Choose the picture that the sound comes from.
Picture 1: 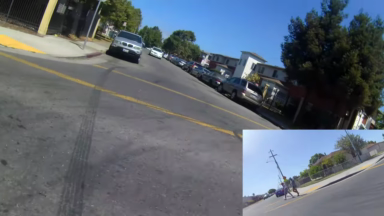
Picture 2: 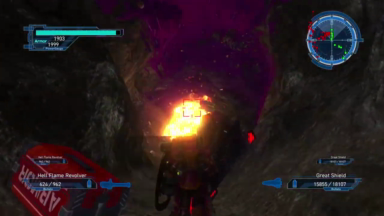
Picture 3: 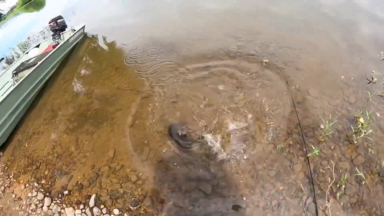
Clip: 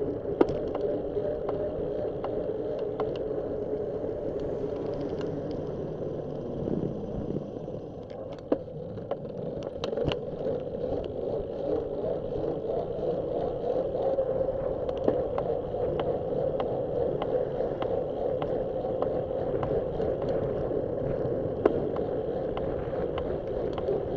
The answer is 1